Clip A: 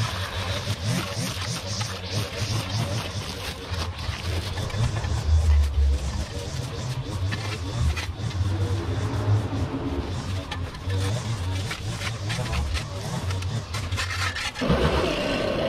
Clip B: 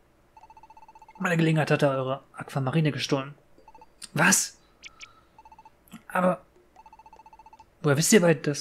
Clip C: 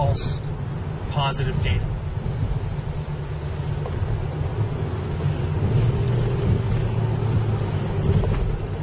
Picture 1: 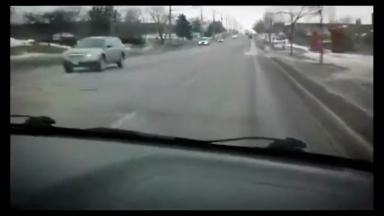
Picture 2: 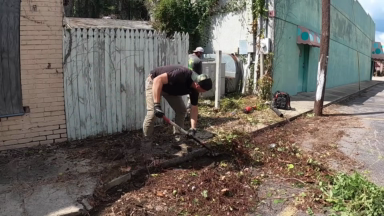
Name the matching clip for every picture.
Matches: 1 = C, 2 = A